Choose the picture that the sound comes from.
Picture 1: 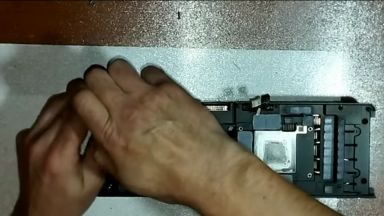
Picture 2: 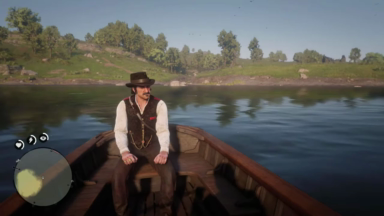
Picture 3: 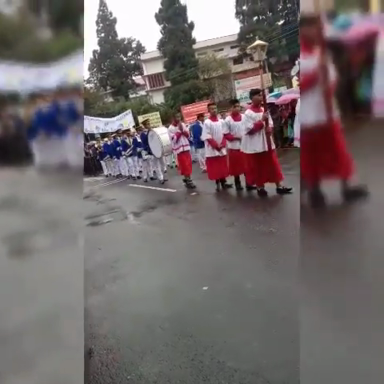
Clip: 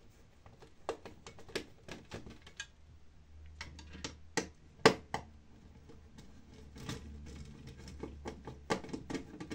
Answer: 1